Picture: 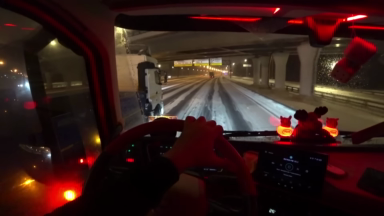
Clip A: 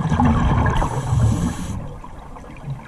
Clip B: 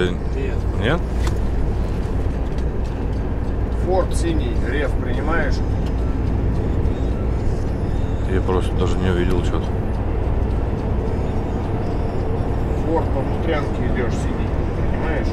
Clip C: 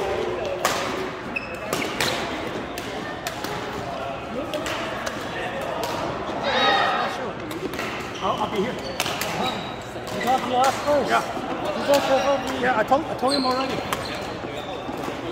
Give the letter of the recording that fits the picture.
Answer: B